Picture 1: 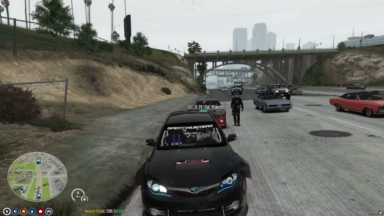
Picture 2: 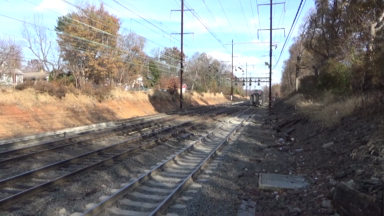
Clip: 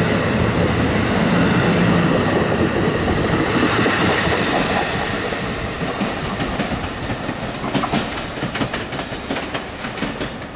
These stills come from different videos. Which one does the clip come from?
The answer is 2